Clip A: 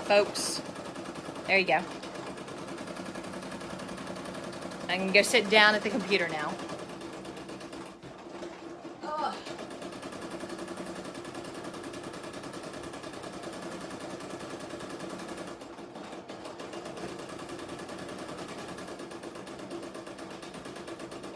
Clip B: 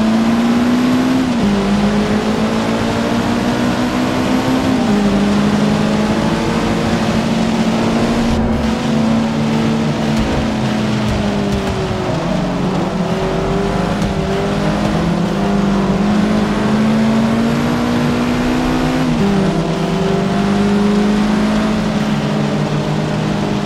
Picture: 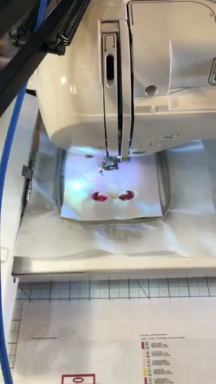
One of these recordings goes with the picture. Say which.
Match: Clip A